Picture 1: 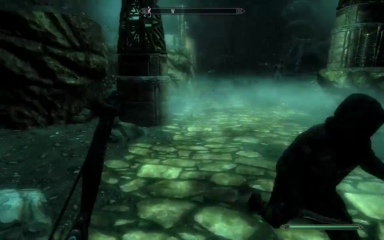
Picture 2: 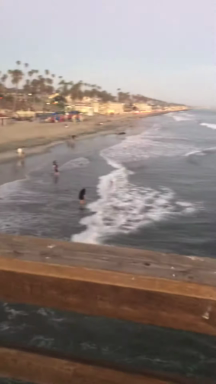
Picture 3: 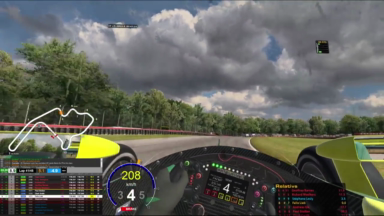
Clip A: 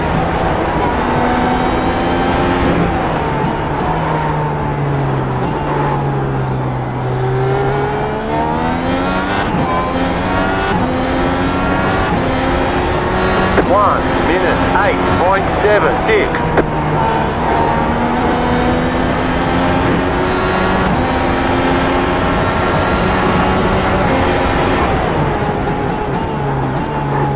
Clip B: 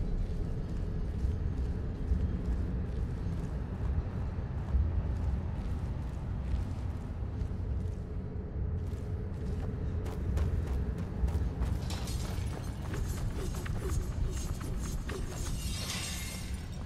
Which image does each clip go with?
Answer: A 3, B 1